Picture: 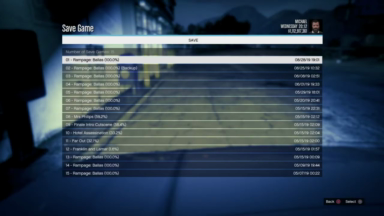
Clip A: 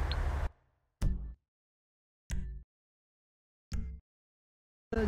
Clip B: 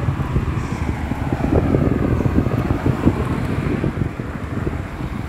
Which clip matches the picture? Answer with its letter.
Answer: A